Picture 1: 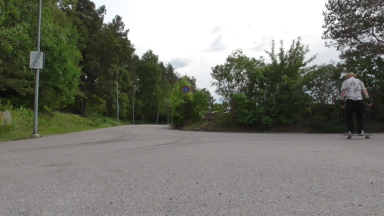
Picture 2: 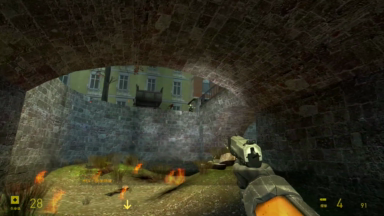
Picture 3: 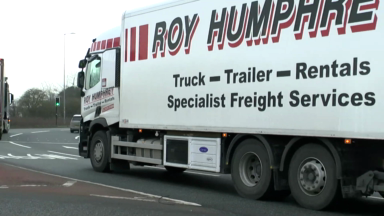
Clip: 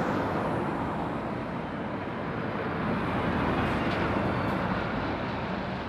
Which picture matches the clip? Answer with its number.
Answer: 3